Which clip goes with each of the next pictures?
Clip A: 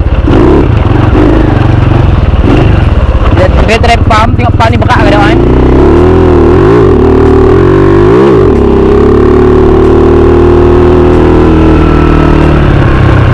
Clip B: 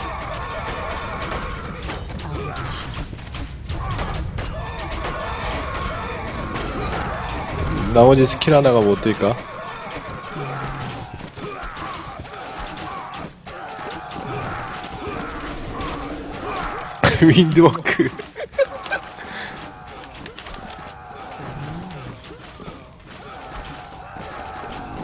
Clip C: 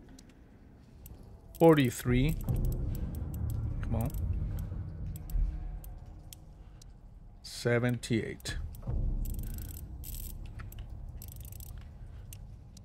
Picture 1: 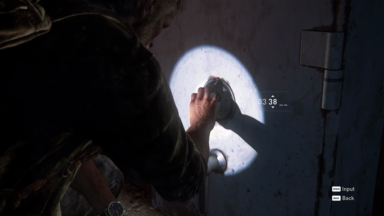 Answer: C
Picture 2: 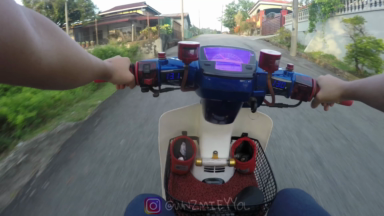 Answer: A